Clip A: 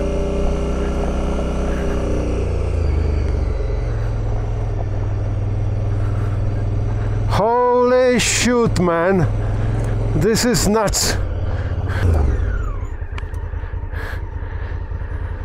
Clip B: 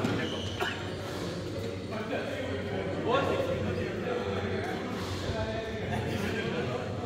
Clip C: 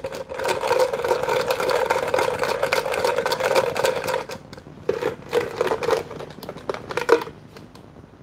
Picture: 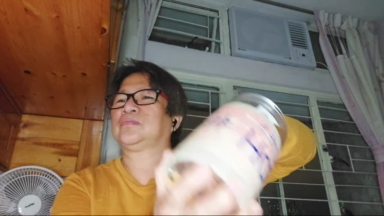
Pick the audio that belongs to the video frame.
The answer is C